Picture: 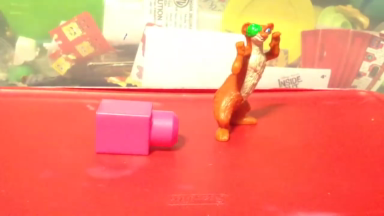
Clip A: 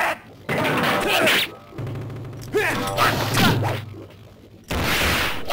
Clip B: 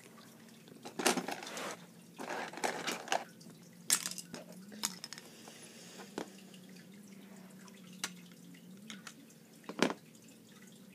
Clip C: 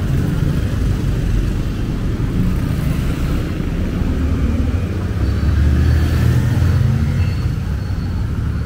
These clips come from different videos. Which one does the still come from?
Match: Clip B